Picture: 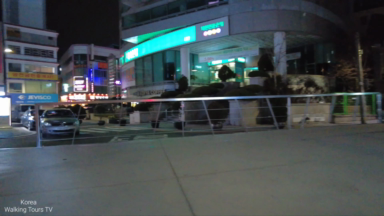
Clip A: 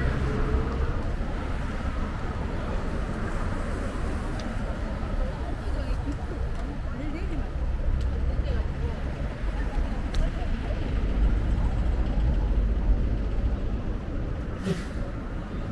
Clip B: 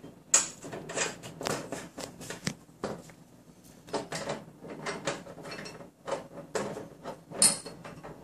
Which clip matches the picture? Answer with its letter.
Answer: A